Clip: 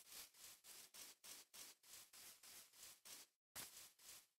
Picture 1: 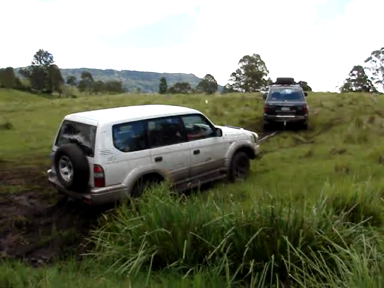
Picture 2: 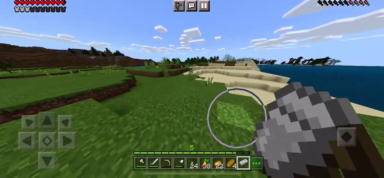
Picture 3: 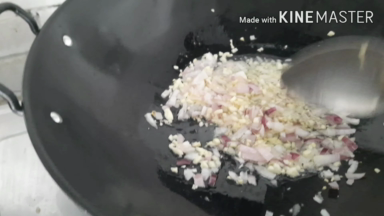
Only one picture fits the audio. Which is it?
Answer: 2